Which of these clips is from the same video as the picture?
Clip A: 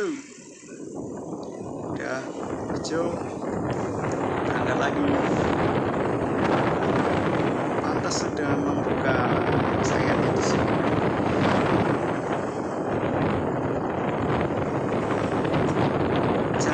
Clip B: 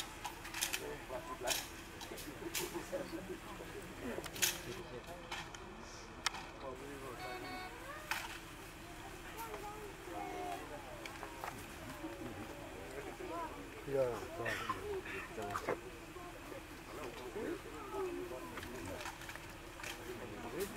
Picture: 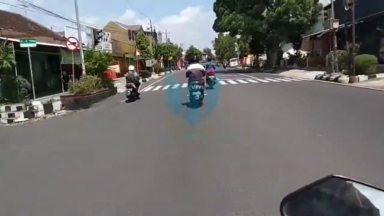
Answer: A